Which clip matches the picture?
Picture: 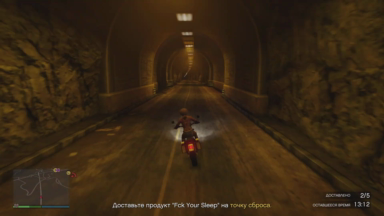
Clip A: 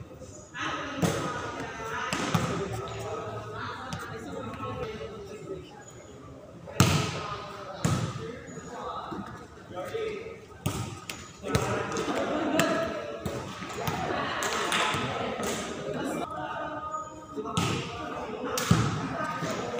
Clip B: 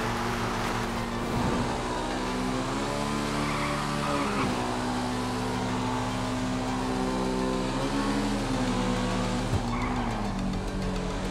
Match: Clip B